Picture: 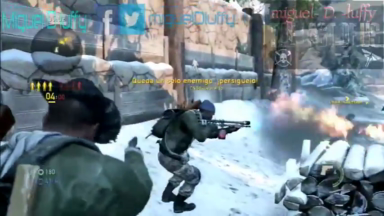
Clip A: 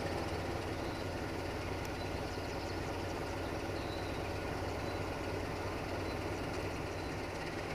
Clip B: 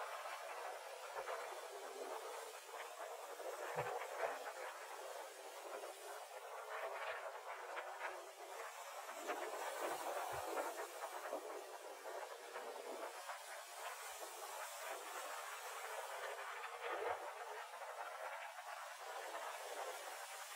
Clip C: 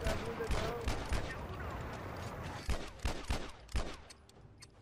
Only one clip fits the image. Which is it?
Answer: C